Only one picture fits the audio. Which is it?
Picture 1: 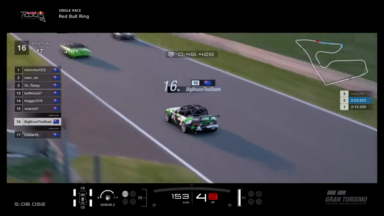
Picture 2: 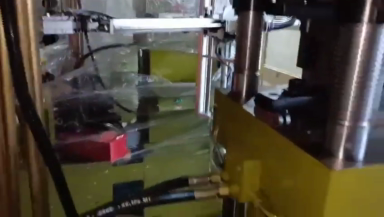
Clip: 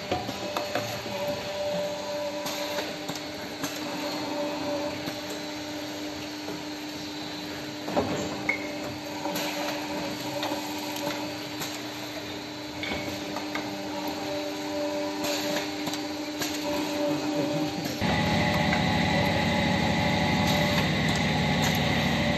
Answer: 2